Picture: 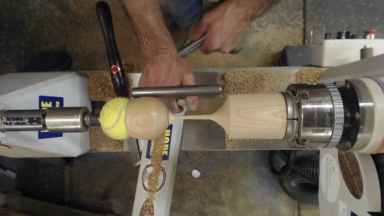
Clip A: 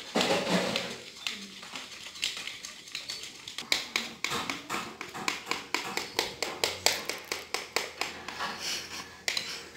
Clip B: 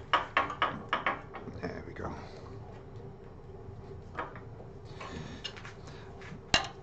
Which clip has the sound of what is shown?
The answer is B